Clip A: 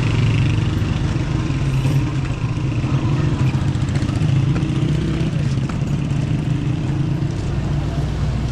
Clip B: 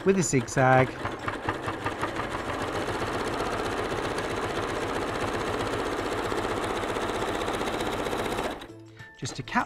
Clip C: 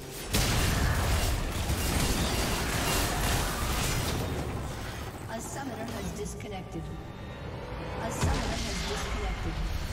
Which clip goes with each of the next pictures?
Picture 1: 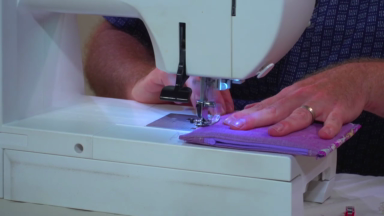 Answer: B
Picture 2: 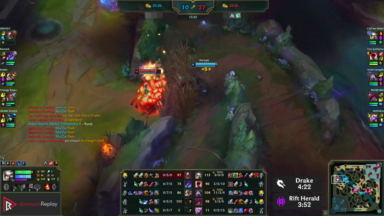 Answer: C